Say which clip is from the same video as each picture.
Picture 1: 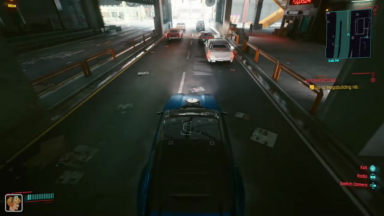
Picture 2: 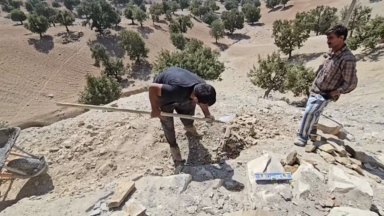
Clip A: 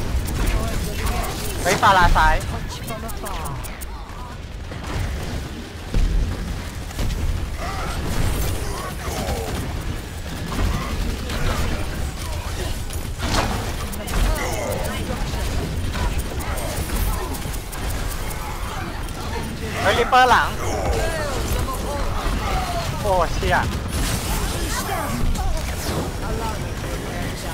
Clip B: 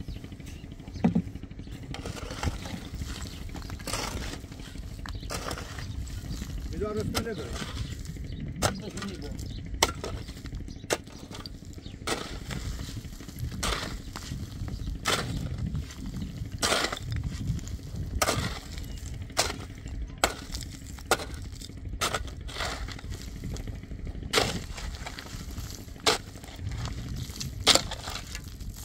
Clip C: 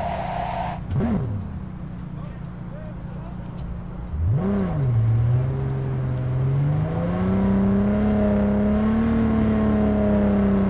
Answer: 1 C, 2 B